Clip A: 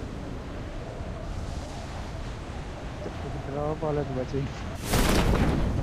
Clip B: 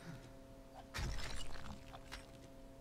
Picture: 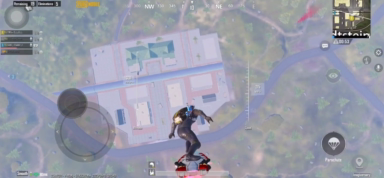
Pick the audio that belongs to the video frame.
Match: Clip A